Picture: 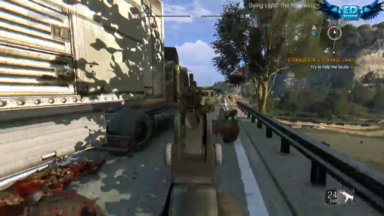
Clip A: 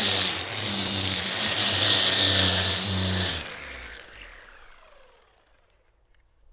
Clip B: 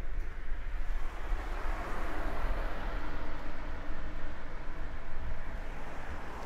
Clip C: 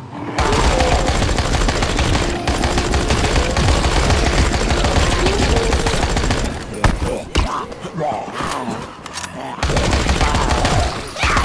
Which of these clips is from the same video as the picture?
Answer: C